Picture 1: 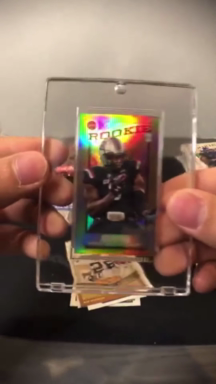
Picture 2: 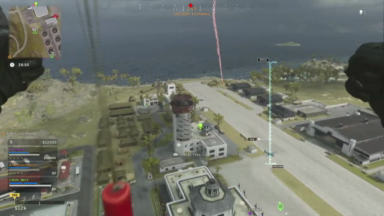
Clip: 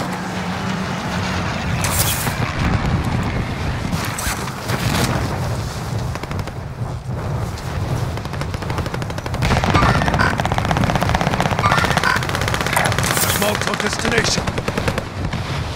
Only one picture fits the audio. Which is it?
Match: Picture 2